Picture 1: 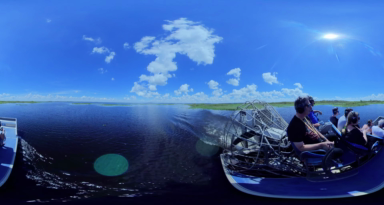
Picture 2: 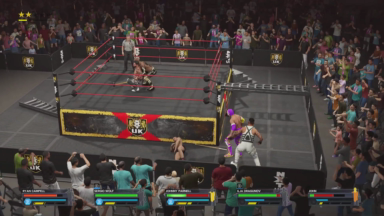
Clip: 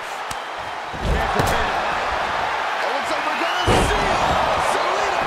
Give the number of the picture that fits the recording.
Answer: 2